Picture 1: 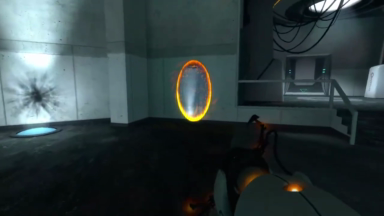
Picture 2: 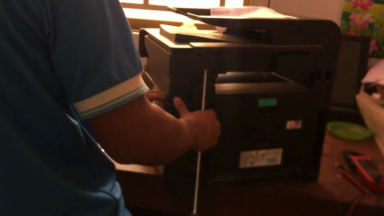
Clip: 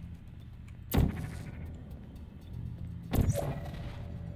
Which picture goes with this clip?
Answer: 1